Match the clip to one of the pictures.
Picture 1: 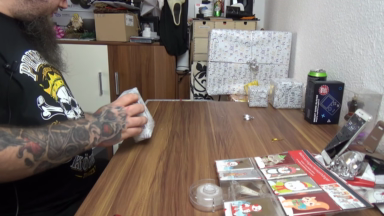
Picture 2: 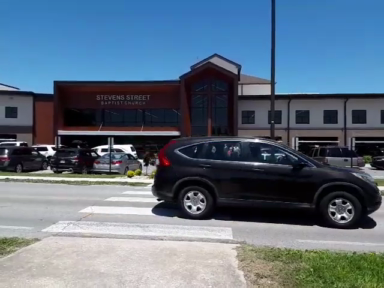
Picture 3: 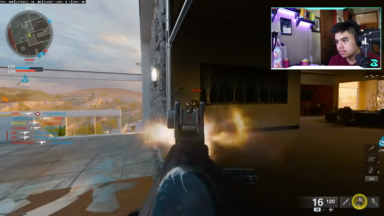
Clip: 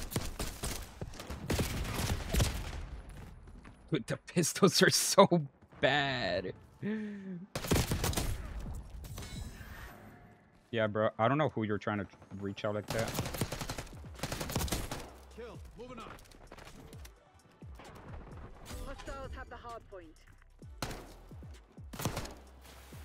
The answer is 3